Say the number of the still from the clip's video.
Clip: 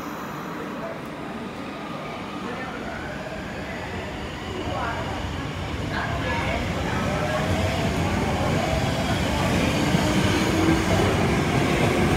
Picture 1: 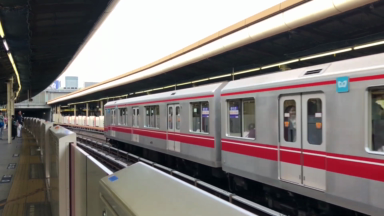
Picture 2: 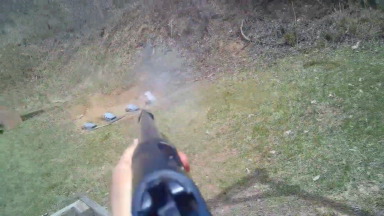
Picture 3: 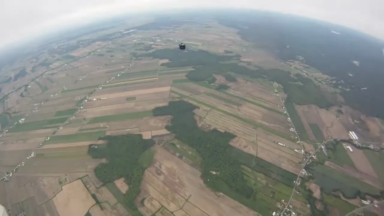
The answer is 1